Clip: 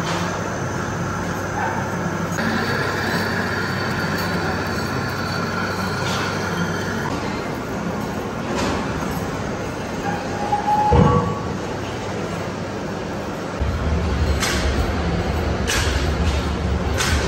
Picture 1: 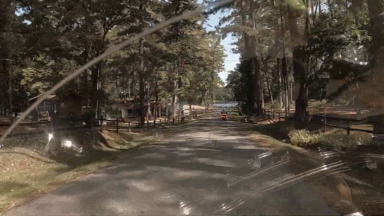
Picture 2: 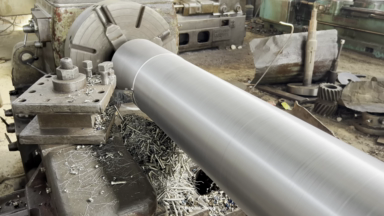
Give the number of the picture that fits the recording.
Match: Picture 2